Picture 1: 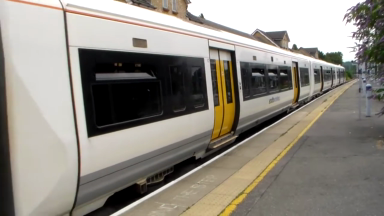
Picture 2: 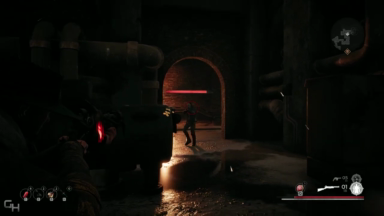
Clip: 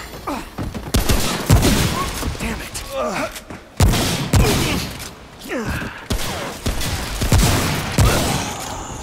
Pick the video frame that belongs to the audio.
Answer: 2